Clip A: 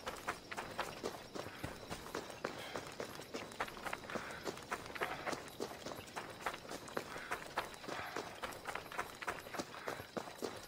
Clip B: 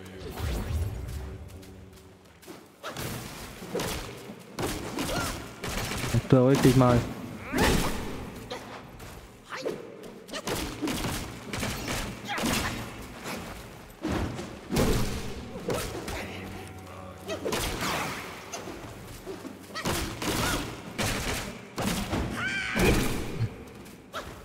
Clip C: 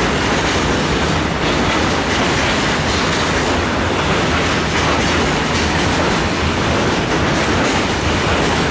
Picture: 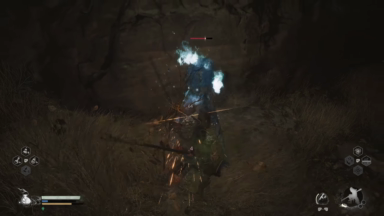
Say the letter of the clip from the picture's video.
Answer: B